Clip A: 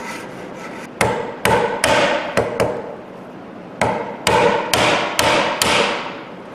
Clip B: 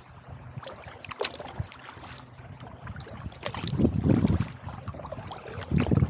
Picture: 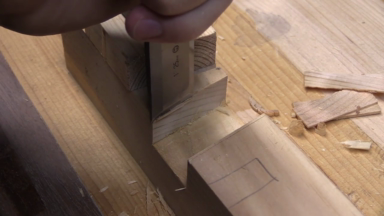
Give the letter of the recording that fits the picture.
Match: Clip A